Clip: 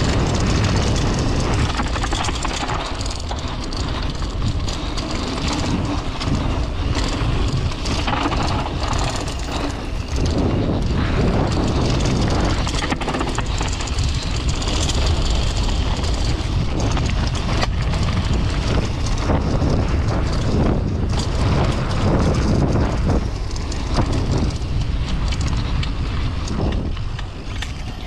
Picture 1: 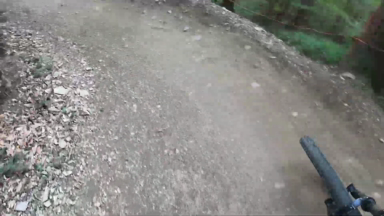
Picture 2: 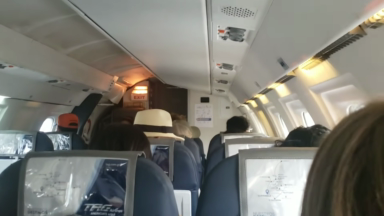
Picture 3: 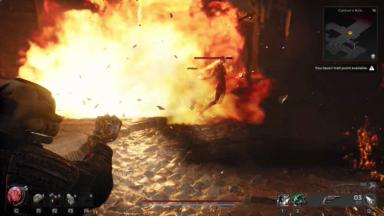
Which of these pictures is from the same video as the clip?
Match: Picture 1